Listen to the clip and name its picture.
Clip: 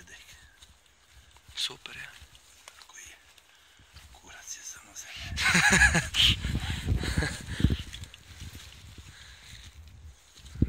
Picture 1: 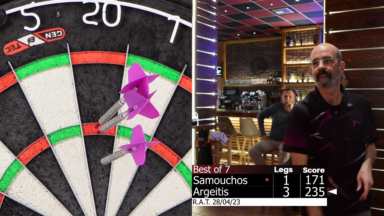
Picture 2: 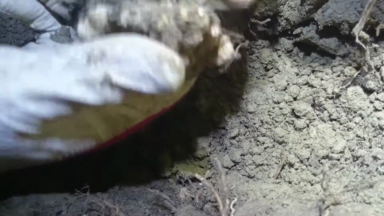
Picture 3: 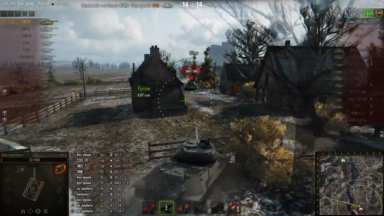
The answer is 2